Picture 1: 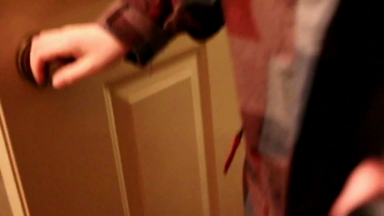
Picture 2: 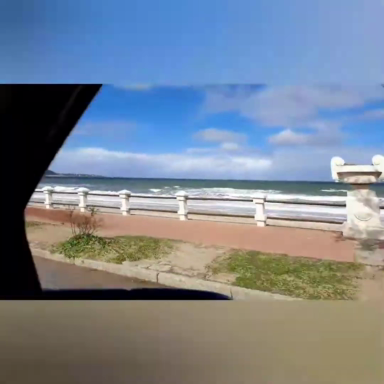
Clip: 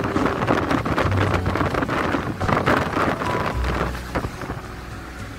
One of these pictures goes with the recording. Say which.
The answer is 2